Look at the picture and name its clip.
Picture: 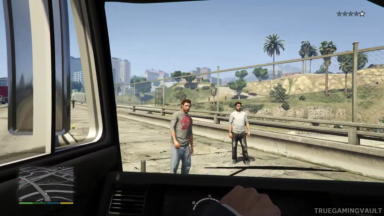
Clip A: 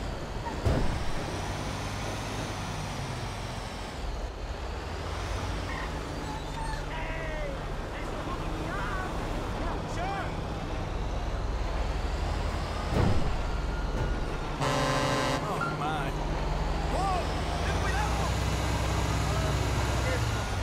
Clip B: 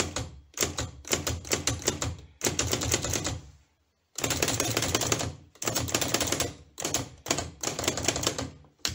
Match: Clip A